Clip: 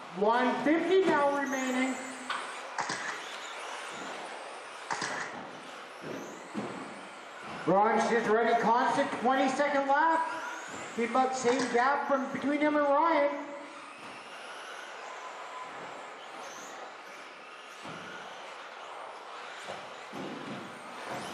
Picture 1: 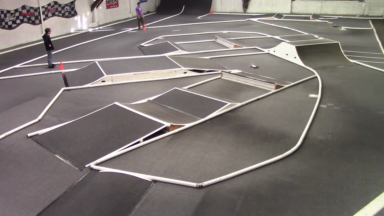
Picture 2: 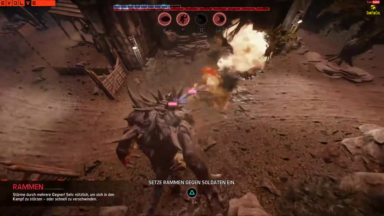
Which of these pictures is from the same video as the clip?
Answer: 1